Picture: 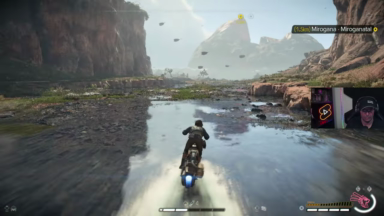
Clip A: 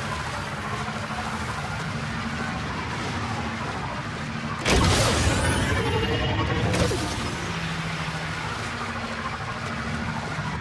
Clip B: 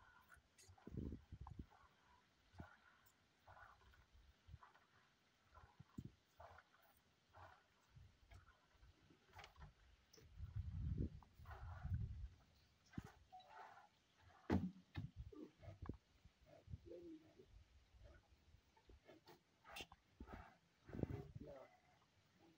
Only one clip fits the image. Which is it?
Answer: A